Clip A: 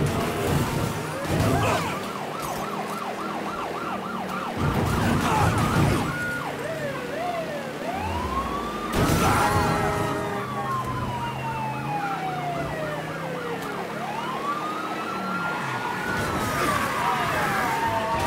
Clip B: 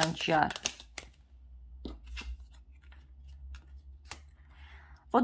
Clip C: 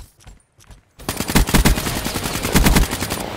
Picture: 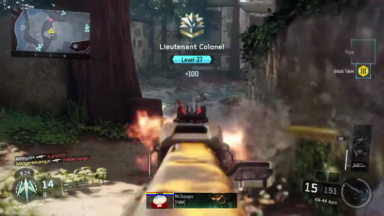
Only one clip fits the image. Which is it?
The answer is C